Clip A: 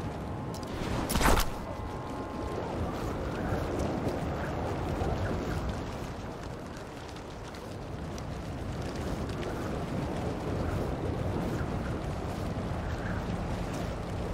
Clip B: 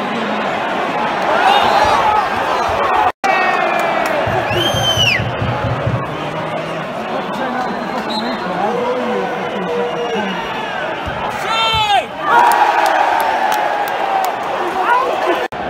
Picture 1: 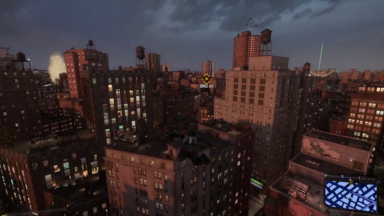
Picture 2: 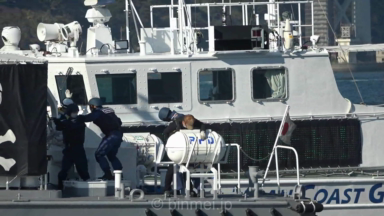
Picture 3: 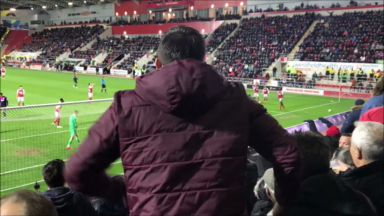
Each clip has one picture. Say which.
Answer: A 1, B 3